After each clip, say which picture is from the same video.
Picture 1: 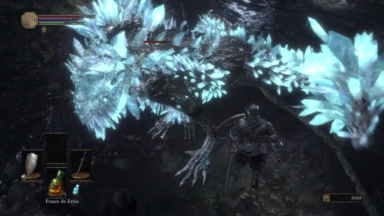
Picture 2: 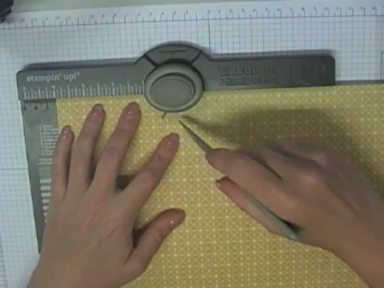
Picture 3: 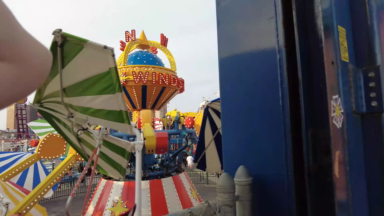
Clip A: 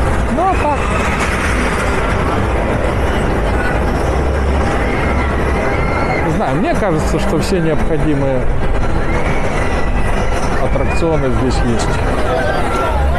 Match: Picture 3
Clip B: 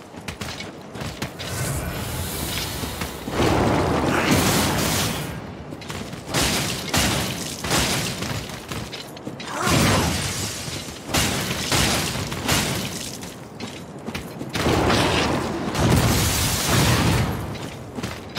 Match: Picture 1